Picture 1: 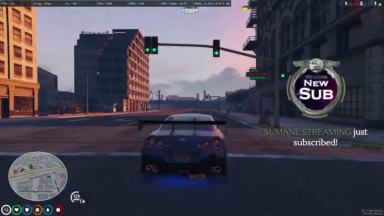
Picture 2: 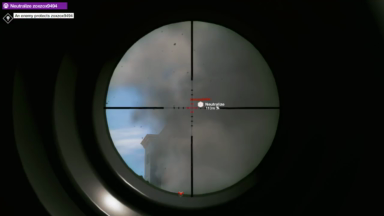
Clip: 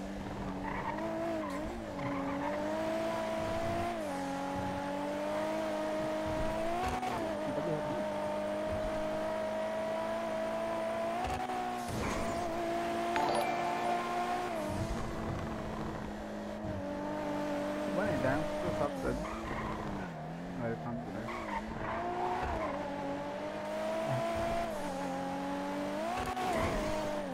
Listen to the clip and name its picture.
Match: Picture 1